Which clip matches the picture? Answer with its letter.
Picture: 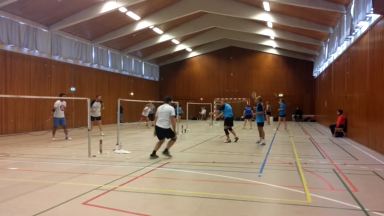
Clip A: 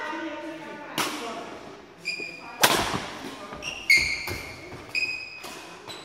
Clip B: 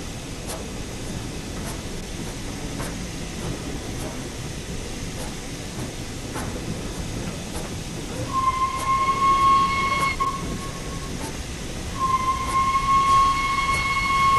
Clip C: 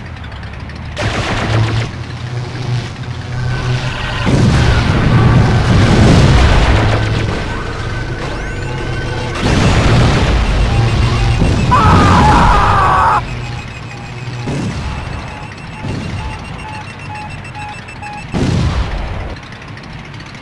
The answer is A